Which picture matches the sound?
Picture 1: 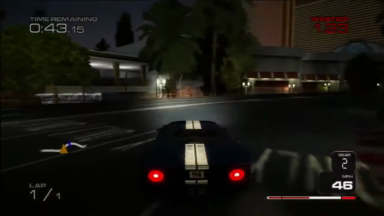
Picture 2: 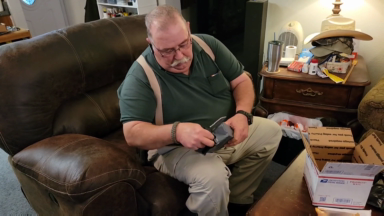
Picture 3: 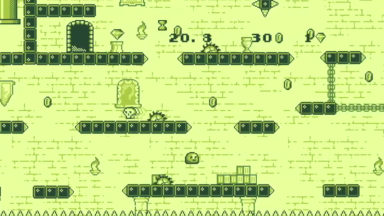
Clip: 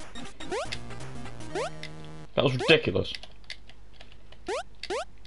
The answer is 3